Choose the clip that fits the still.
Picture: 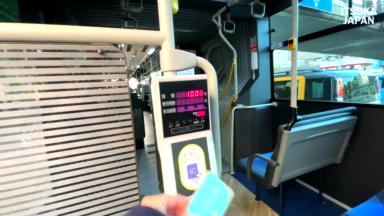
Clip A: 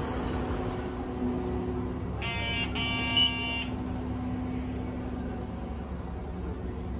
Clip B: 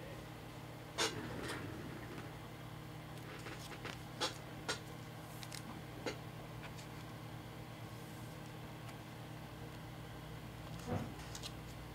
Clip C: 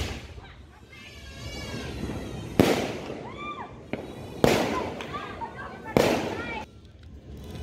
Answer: A